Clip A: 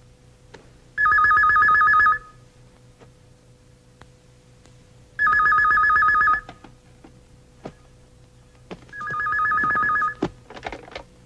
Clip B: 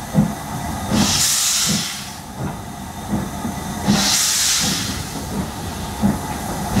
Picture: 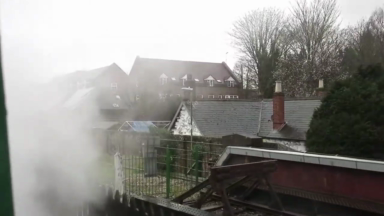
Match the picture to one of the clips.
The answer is B